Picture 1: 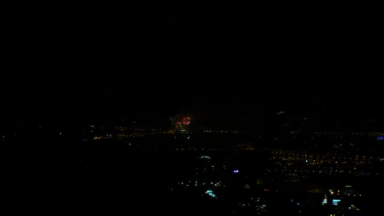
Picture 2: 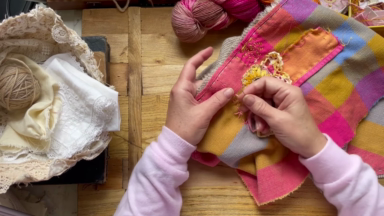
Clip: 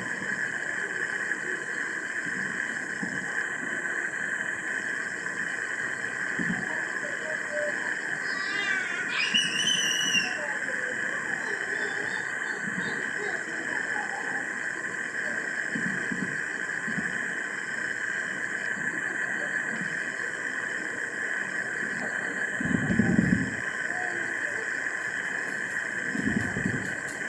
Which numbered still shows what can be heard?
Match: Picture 1